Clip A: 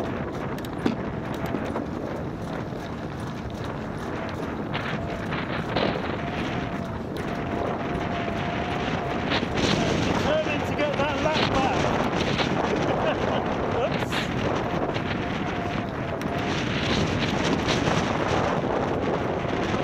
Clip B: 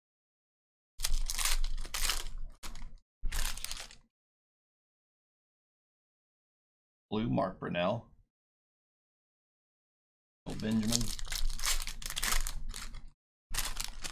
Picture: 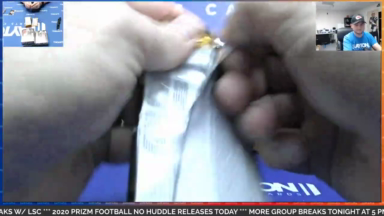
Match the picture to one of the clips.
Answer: B